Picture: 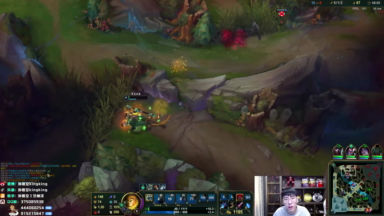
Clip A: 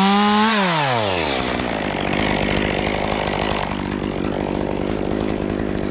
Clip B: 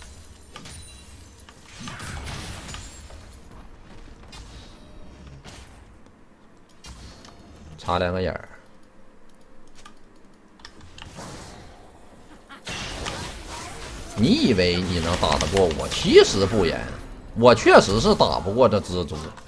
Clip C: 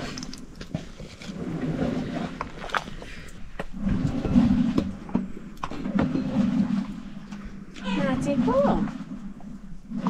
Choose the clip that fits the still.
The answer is B